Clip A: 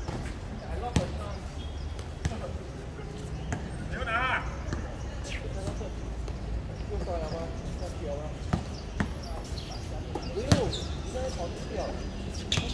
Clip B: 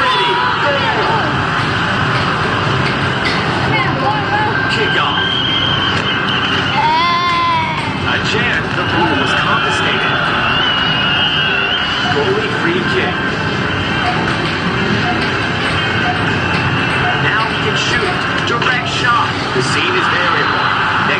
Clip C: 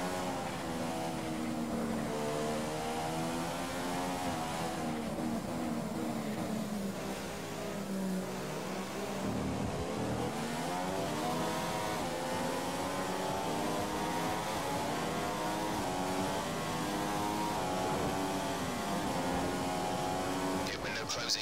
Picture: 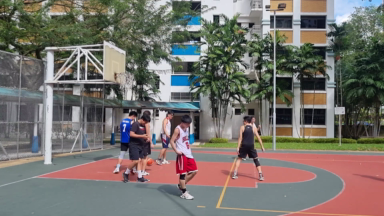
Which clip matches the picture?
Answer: A